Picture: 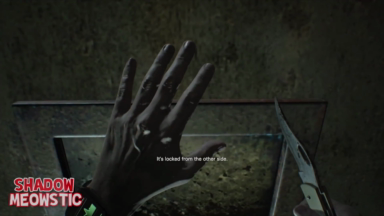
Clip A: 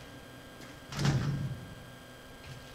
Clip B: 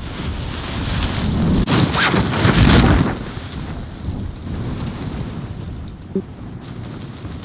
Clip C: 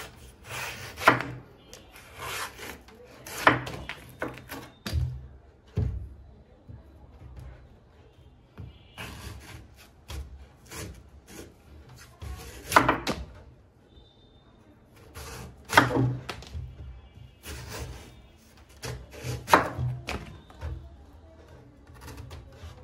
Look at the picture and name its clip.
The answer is A